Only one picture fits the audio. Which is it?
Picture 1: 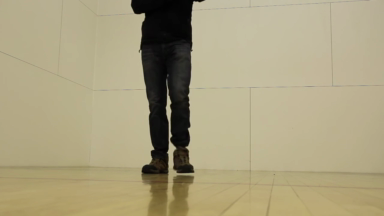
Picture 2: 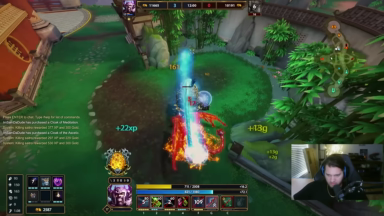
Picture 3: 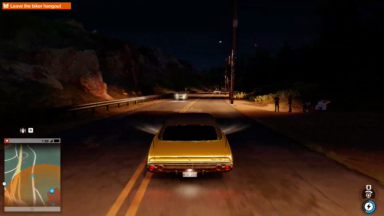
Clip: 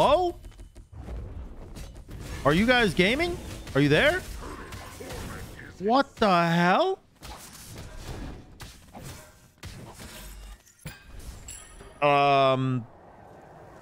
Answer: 2